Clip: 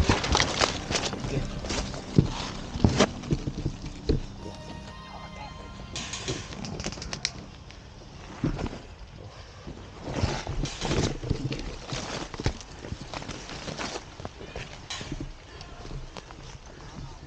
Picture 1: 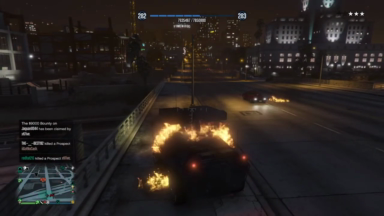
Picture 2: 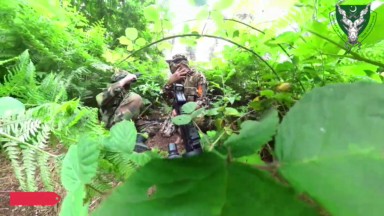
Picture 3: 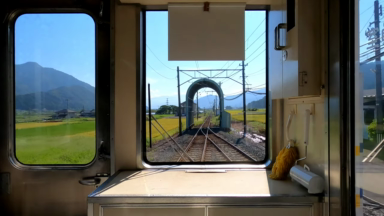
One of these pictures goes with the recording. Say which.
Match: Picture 2